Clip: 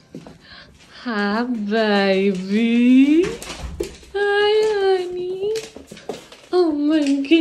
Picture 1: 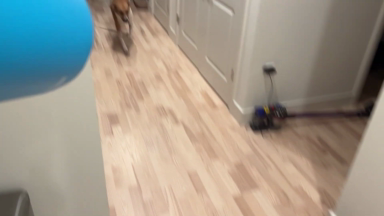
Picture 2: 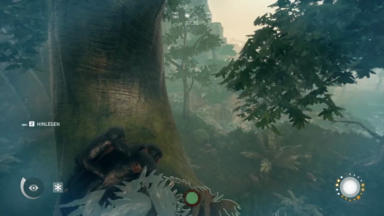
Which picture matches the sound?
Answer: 1